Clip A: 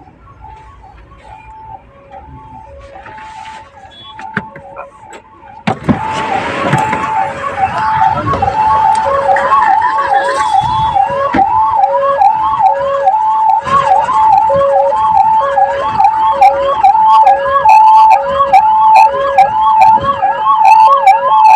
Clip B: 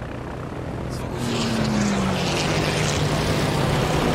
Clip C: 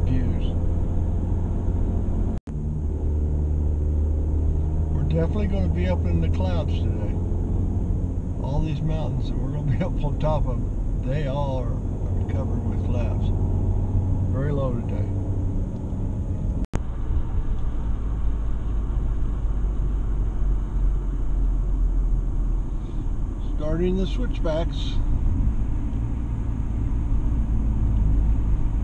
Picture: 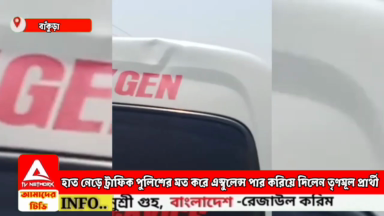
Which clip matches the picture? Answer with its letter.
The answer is A